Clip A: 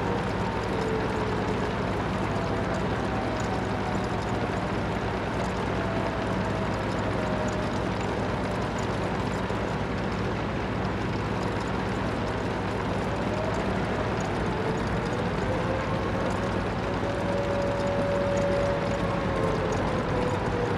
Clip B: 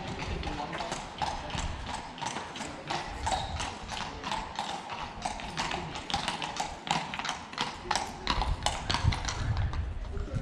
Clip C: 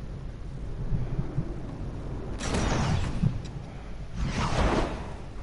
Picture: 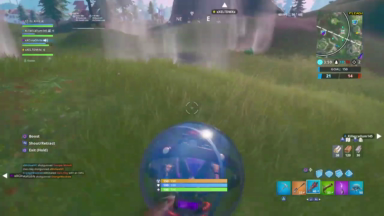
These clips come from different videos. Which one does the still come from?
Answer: C